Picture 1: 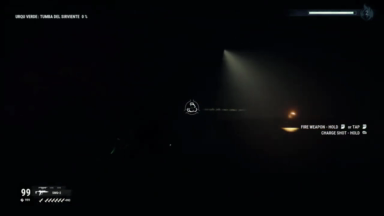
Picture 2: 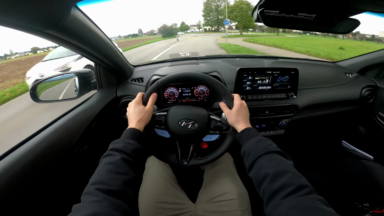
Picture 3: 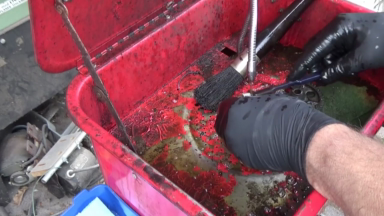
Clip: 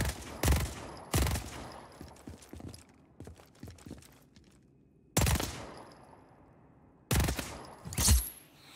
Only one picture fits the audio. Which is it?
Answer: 1